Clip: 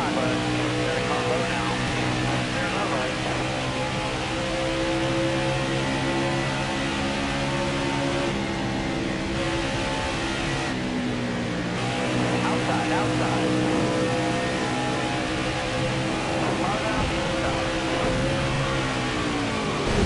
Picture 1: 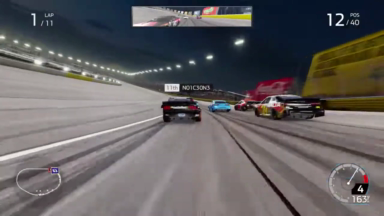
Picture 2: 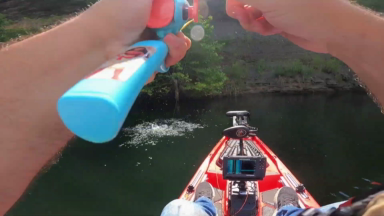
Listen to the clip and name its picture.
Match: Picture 1